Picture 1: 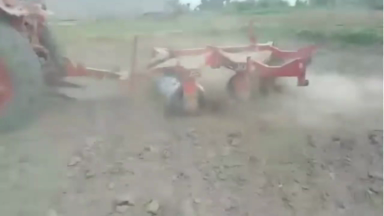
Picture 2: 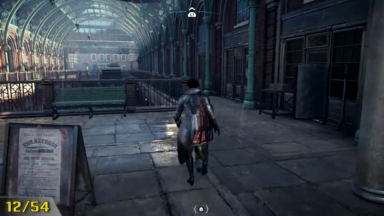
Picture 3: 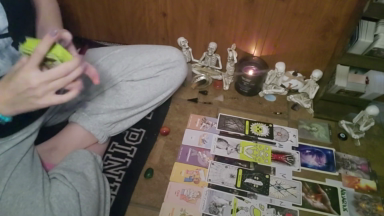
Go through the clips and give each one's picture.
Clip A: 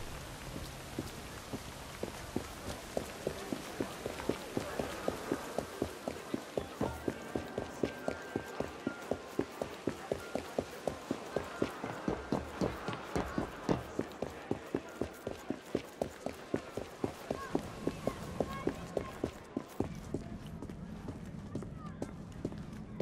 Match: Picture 2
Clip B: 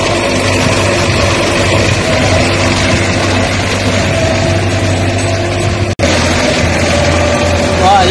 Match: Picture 1